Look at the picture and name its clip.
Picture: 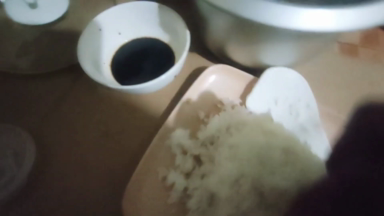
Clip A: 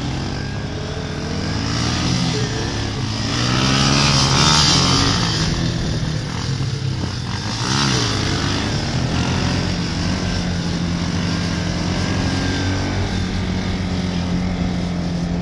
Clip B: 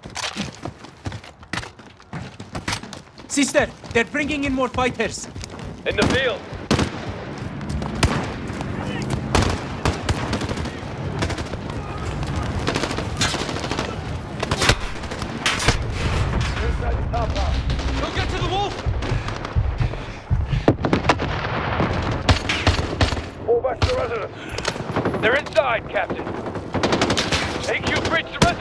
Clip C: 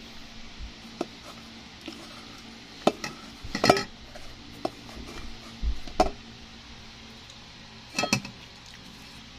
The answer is C